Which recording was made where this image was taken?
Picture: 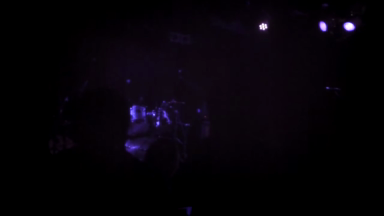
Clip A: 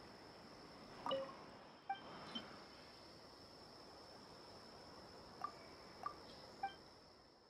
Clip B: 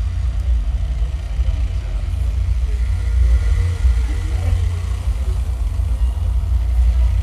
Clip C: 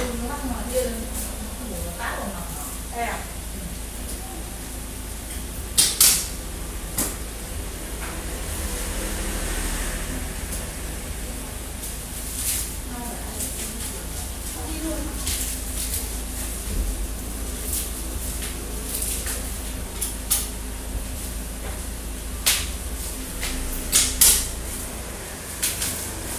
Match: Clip B